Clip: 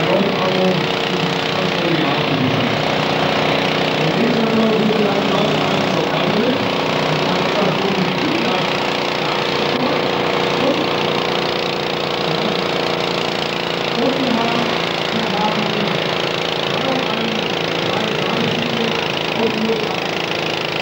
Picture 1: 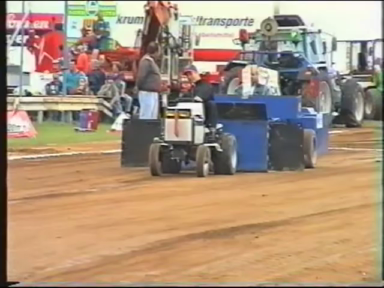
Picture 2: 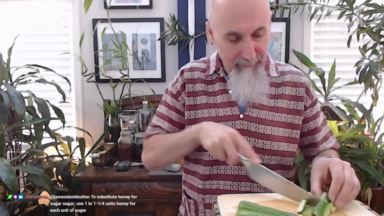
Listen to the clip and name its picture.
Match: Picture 1